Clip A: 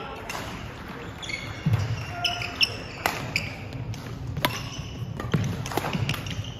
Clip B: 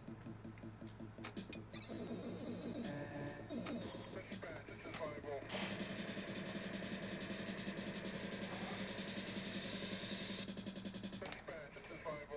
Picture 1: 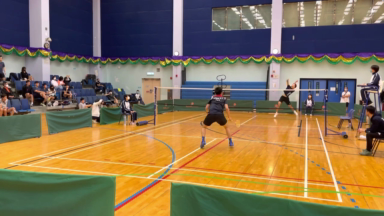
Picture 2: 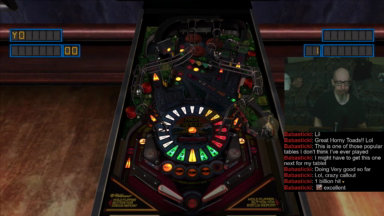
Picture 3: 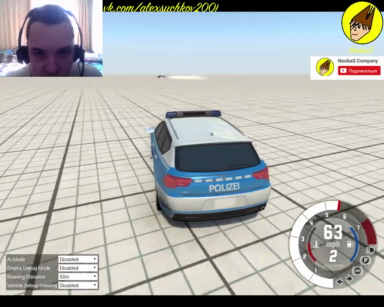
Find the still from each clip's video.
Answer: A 1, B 2